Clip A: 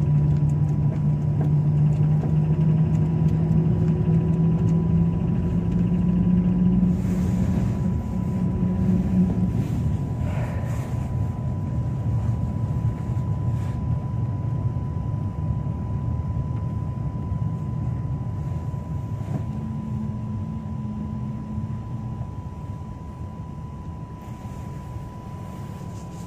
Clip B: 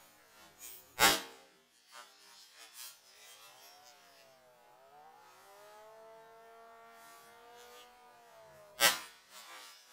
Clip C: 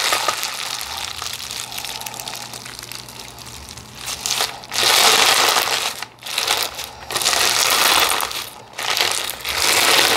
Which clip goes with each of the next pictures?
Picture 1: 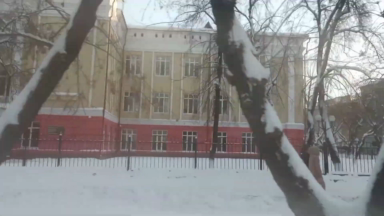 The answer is A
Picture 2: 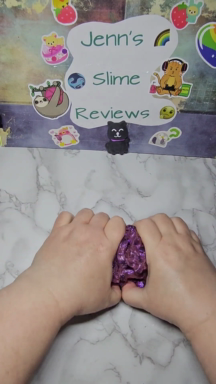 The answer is C